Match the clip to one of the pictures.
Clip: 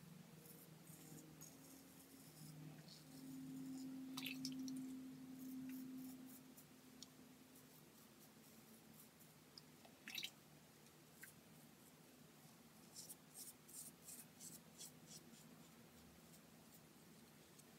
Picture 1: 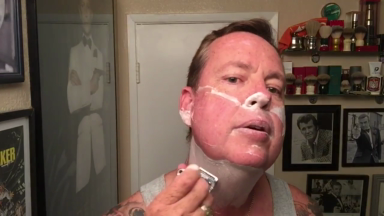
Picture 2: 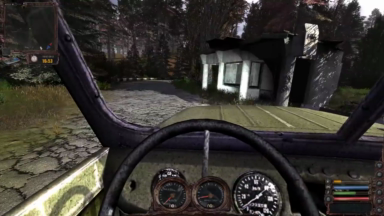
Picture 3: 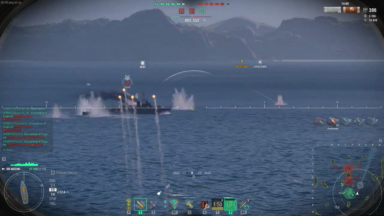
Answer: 1